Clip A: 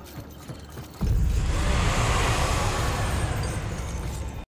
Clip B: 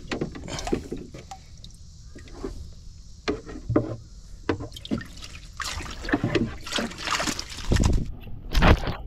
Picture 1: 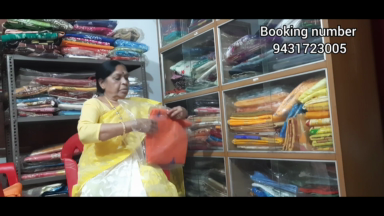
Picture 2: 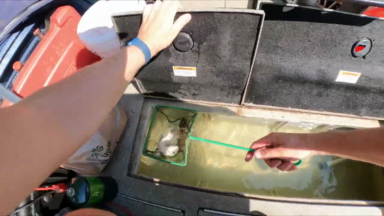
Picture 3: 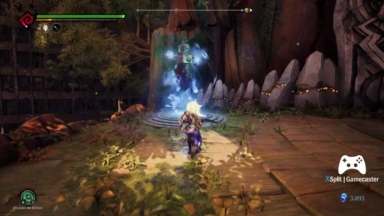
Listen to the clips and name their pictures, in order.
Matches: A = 3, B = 2